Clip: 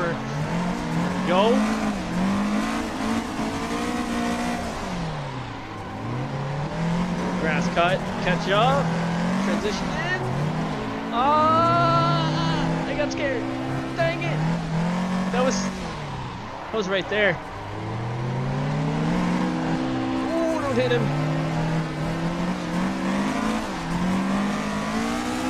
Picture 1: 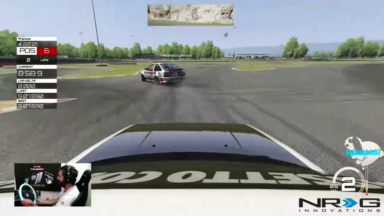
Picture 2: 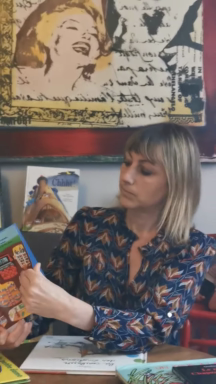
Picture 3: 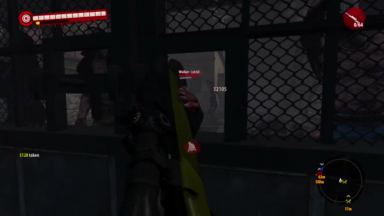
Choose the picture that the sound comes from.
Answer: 1